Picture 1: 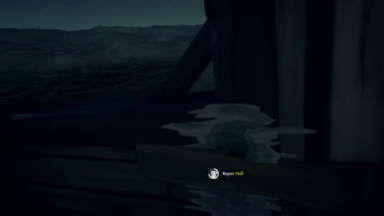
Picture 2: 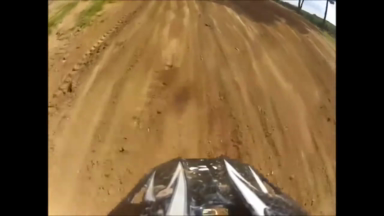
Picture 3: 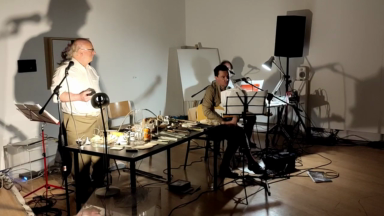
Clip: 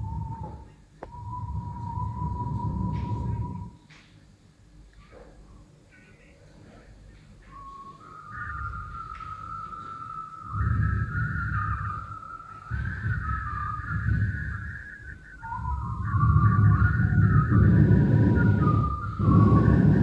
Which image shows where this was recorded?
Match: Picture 3